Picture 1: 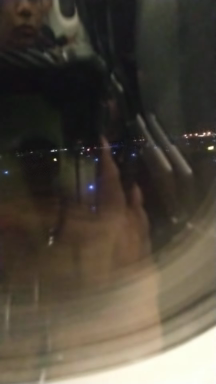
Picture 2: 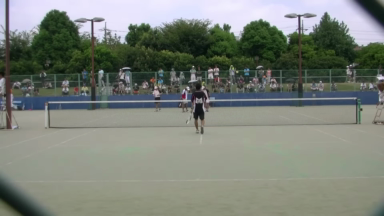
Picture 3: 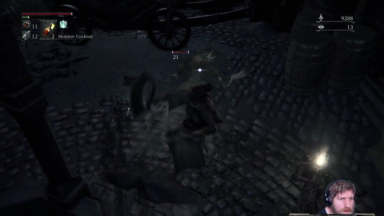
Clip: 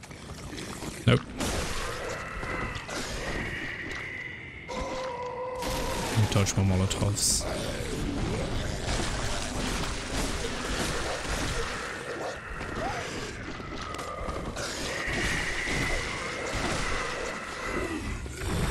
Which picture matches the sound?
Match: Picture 3